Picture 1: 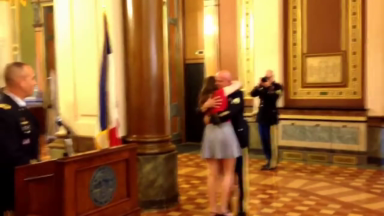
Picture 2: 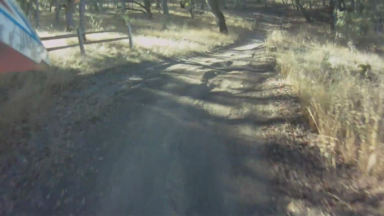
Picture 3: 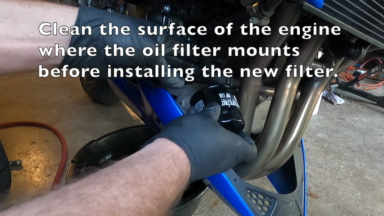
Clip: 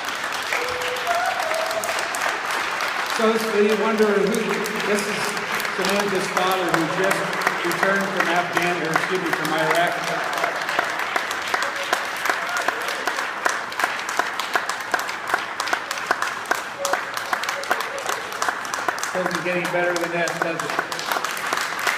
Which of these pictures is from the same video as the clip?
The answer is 1